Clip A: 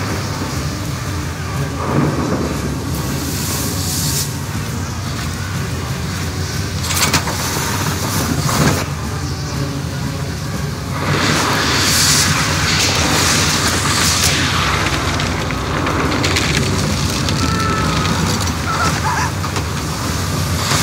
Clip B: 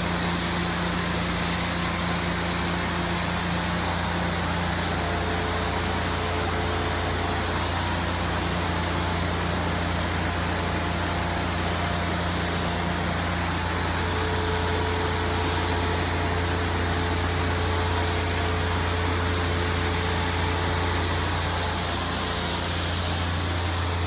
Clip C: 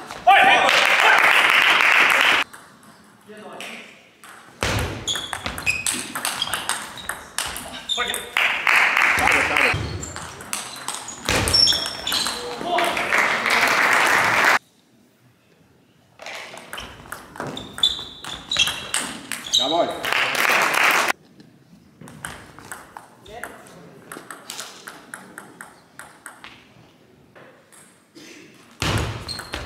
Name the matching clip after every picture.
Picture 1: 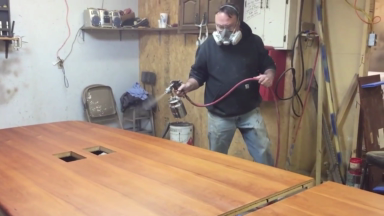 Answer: B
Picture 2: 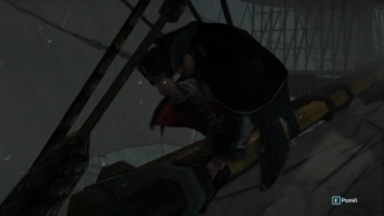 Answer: A